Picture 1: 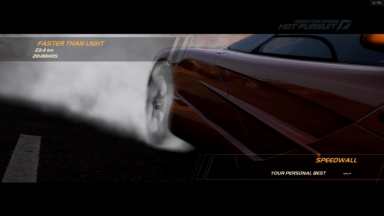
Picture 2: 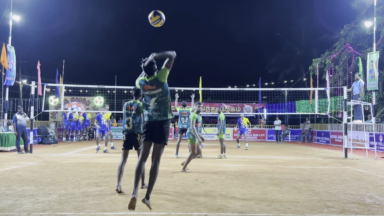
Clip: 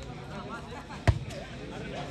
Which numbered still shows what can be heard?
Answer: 2